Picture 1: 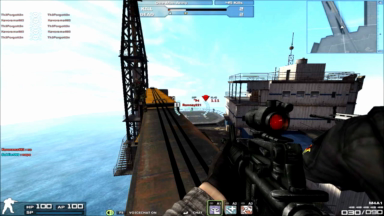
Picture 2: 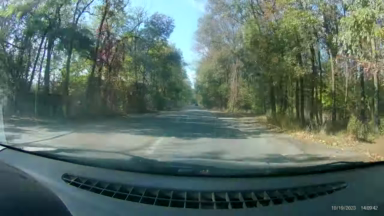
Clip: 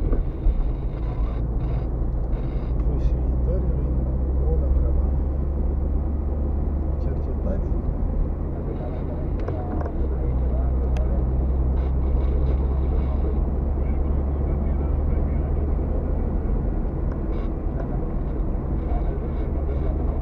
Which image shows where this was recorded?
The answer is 2